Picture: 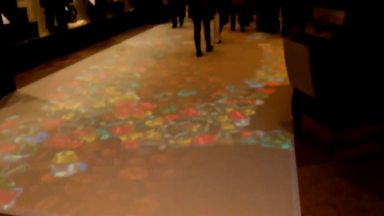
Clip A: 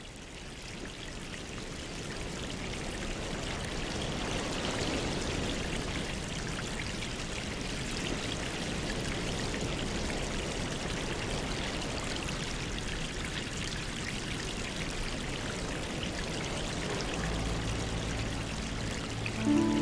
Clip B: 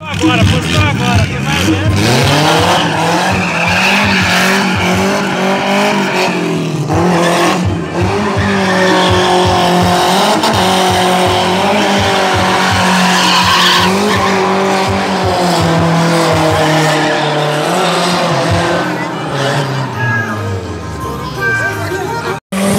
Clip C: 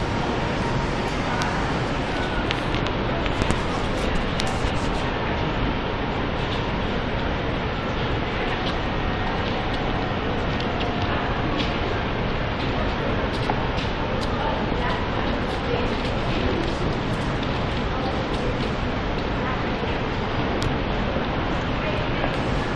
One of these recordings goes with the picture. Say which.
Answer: C